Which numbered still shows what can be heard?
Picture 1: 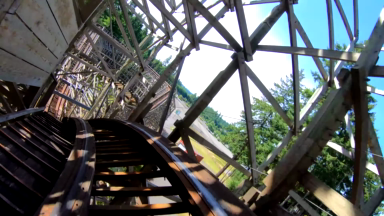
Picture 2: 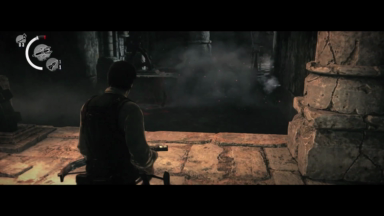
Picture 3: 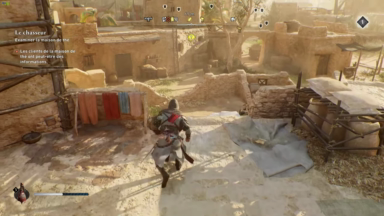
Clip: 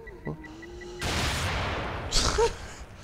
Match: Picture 2